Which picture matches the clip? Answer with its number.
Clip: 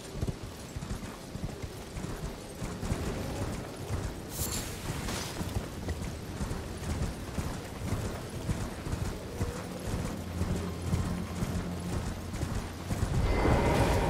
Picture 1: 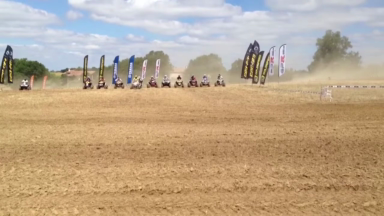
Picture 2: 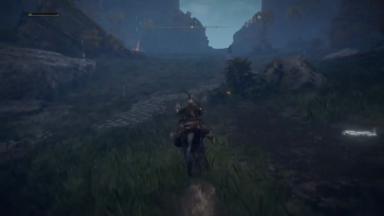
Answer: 2